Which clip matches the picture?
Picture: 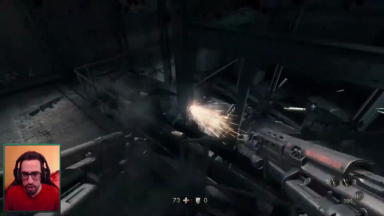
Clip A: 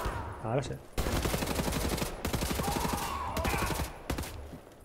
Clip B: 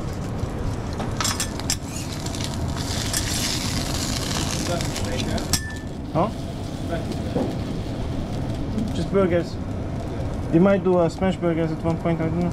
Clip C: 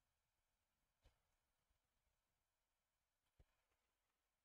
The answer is A